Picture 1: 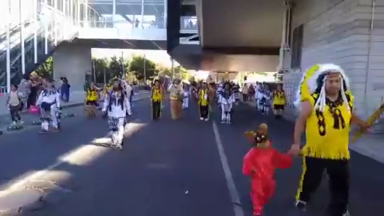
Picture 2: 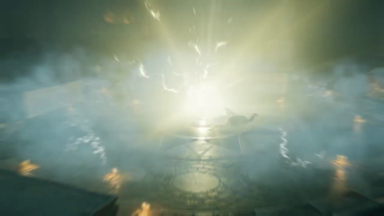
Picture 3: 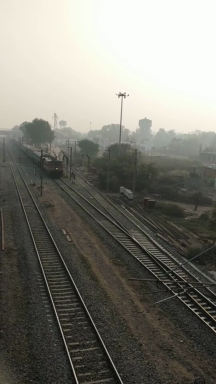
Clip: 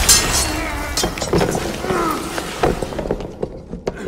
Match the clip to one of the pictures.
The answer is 2